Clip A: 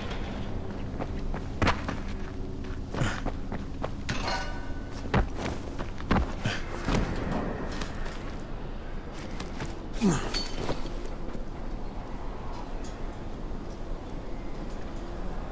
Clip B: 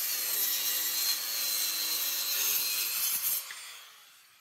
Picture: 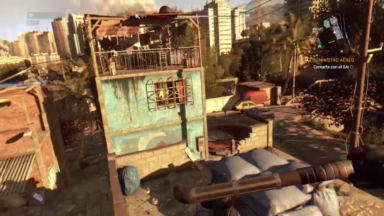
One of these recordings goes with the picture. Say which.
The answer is A